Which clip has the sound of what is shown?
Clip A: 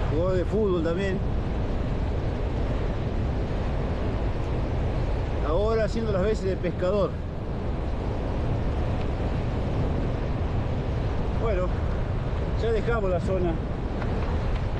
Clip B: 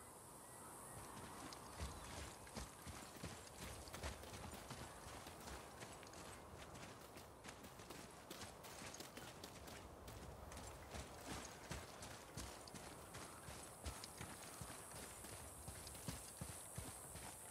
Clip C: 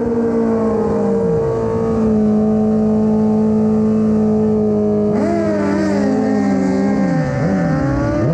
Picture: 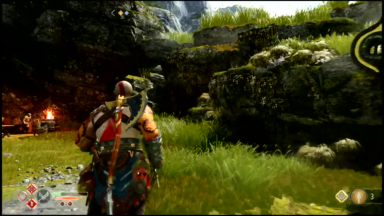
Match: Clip B